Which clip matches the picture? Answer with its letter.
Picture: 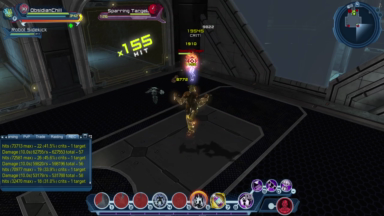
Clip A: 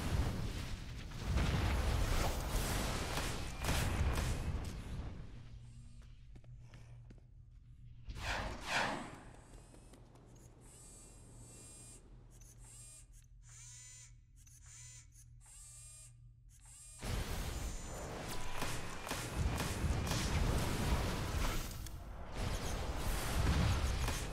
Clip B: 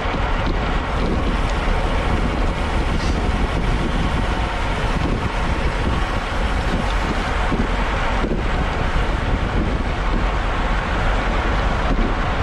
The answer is A